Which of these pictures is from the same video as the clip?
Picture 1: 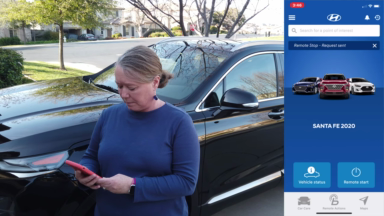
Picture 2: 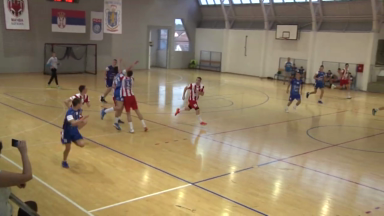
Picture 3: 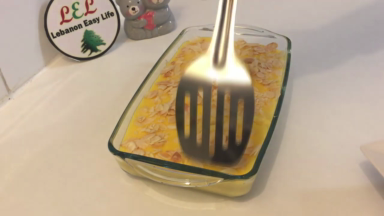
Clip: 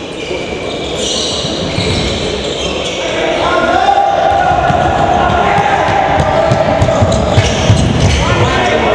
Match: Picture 2